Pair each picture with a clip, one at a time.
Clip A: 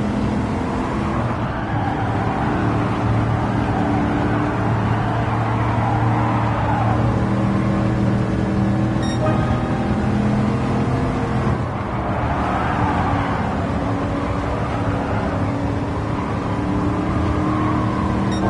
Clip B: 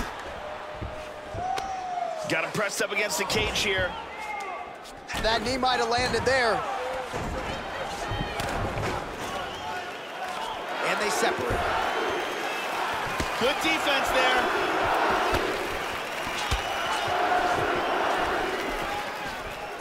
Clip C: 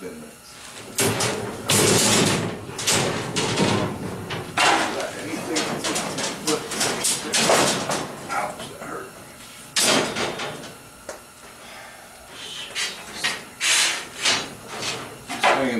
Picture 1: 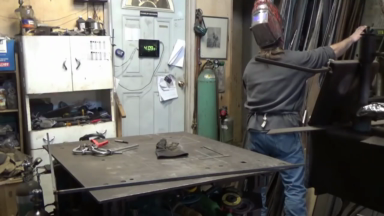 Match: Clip C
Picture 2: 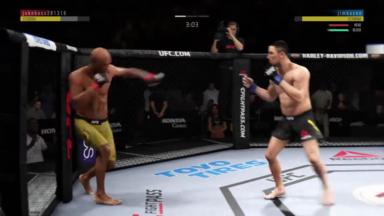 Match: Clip B